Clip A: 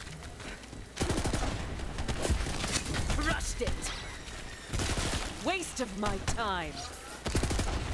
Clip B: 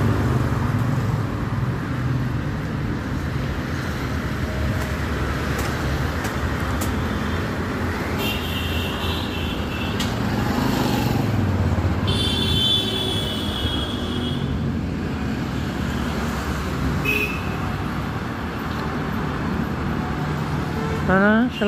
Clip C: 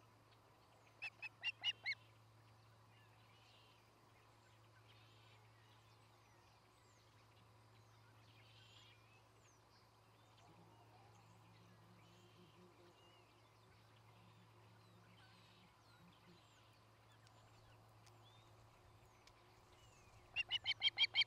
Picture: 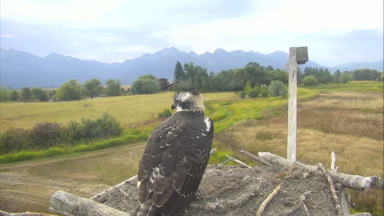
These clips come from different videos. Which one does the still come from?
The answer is C